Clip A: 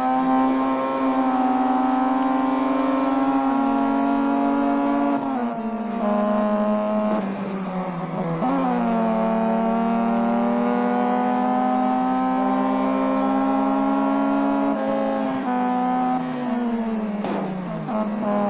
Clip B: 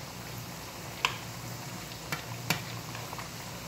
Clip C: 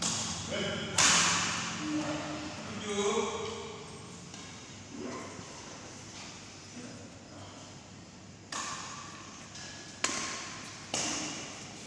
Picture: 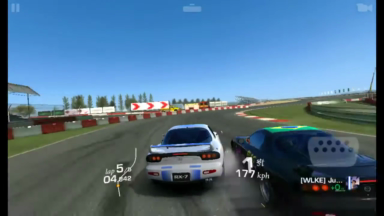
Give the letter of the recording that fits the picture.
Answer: A